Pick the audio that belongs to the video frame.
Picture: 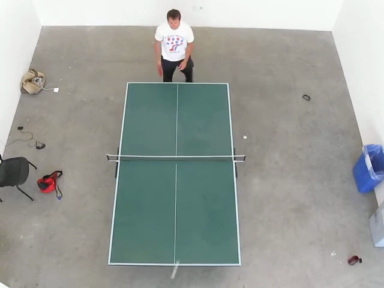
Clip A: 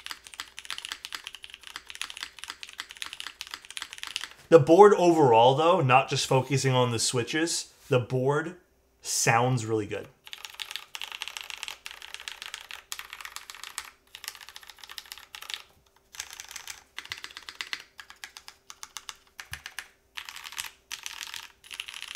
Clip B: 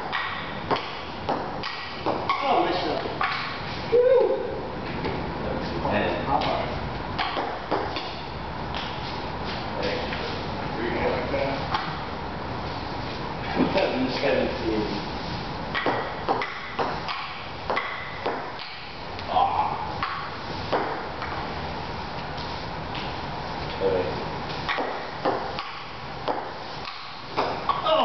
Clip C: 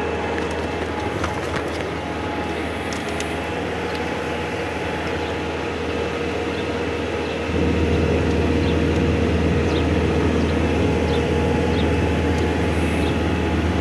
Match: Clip B